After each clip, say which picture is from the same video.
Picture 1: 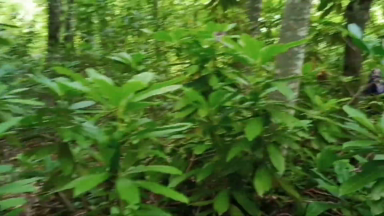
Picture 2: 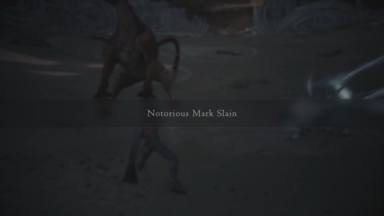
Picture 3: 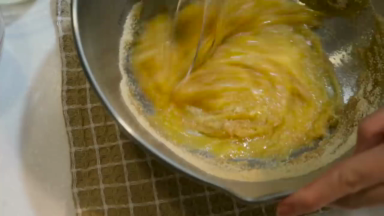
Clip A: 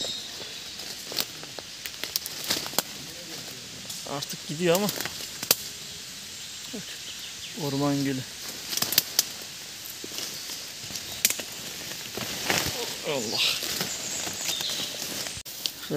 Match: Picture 1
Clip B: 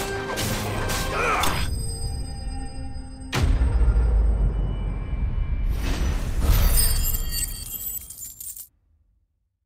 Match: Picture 2